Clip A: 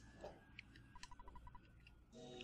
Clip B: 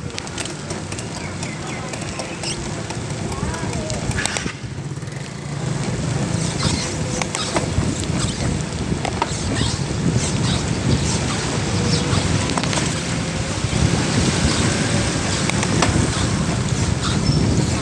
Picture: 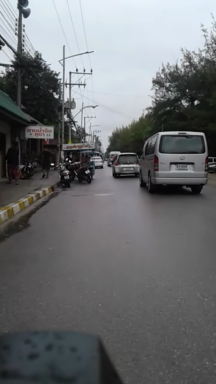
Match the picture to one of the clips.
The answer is B